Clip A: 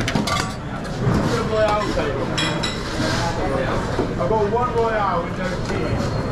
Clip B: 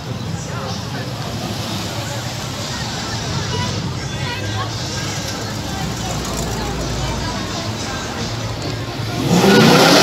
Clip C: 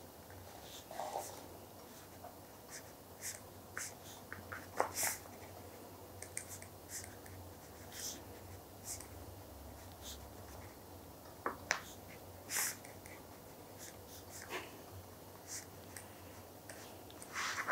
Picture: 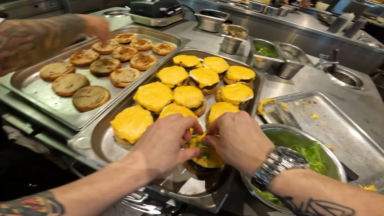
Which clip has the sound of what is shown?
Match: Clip A